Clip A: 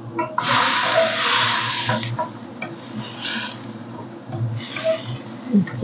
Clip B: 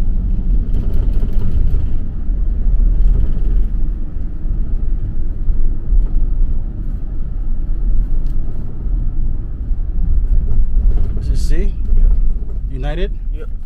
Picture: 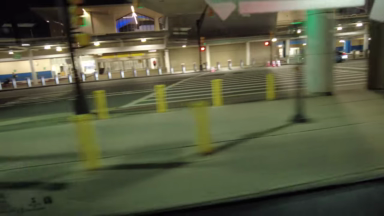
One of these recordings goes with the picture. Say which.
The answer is B